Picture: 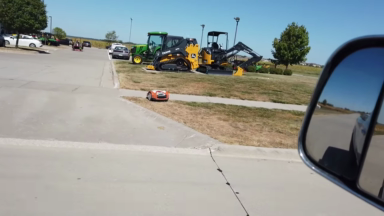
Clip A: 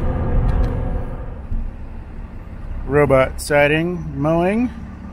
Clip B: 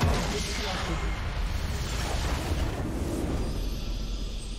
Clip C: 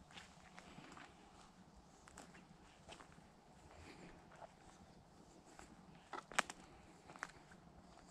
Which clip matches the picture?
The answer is A